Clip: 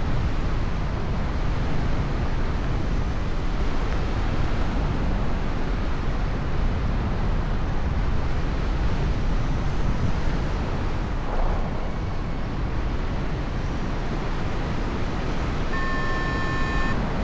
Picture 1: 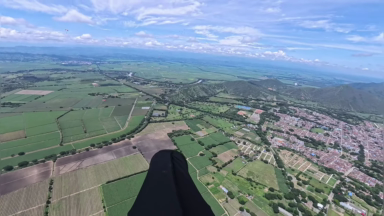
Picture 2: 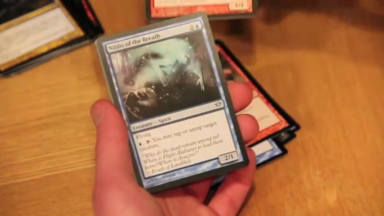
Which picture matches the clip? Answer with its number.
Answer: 1